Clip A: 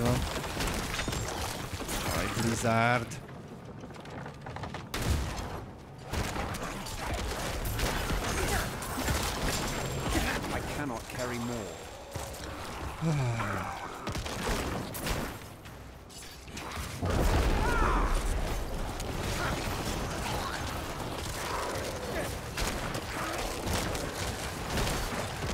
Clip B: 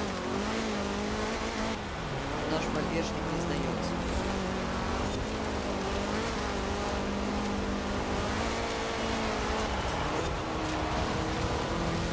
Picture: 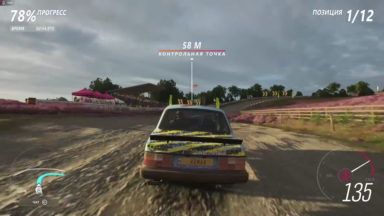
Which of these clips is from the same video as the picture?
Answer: B